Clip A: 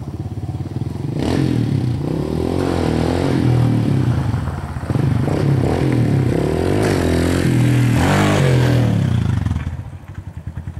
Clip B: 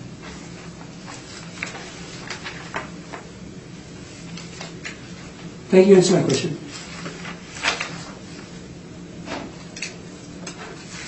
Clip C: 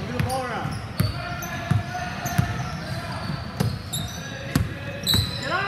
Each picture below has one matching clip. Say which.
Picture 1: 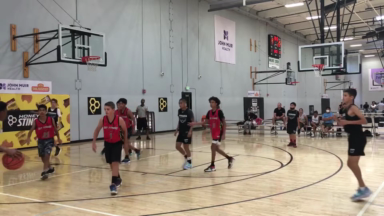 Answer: C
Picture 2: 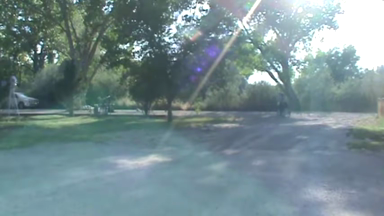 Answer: A